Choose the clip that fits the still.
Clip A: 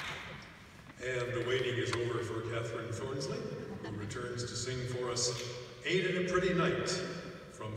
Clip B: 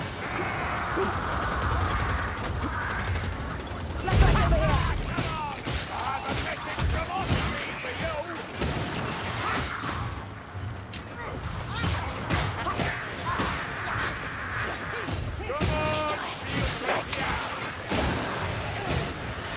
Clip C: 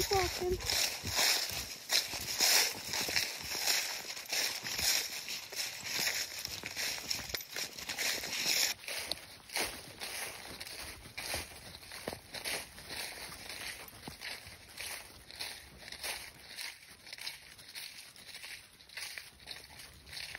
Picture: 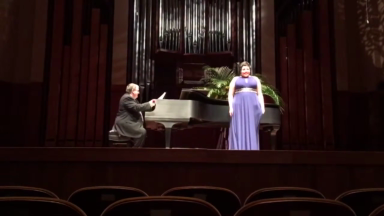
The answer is A